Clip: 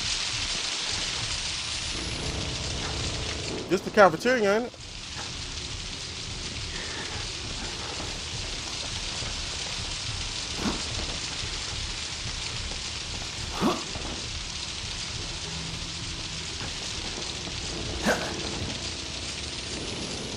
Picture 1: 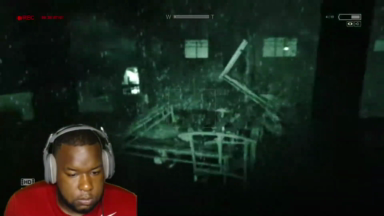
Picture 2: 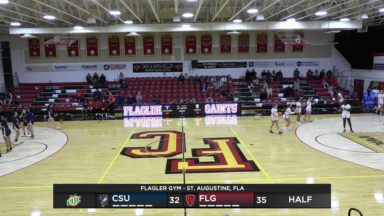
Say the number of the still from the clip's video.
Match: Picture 1